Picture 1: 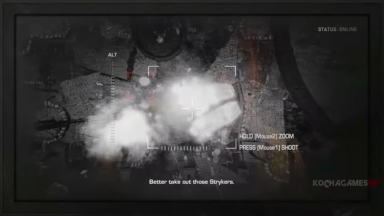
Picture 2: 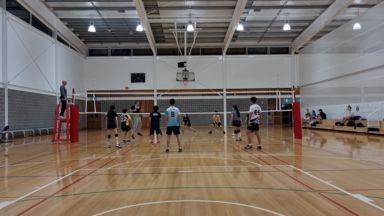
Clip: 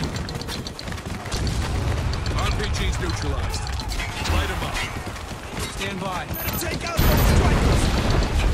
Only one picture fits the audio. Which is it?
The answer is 1